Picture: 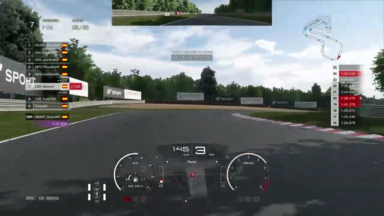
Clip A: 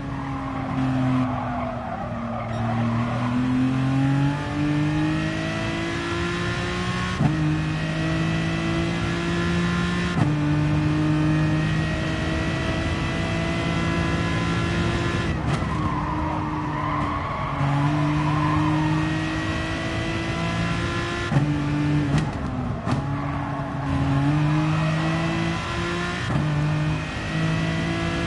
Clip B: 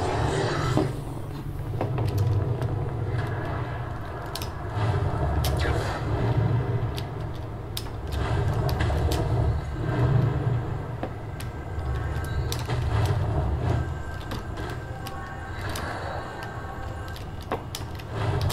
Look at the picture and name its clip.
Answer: A